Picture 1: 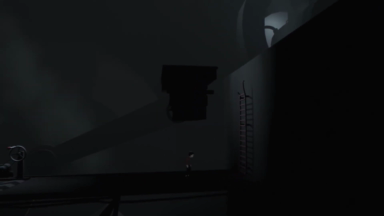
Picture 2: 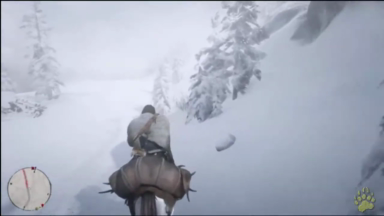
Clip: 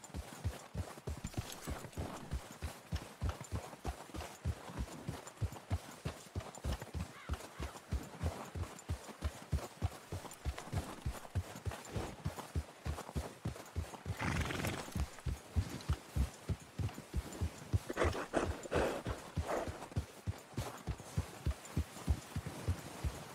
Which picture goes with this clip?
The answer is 2